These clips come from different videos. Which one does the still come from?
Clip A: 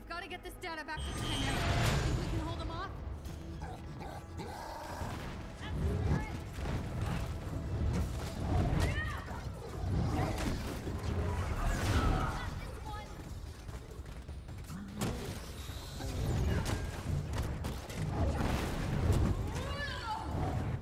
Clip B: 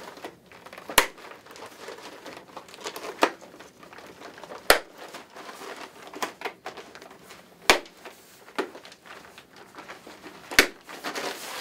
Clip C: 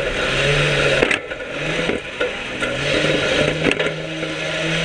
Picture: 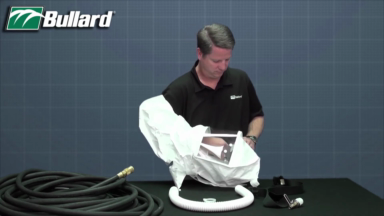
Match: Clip B